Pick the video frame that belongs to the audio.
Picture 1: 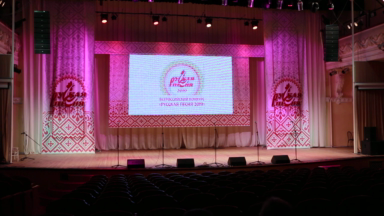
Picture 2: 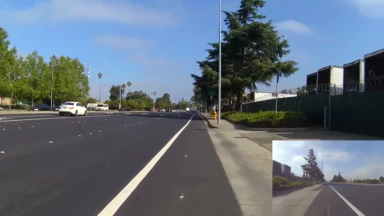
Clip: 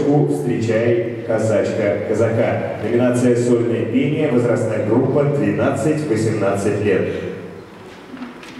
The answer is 1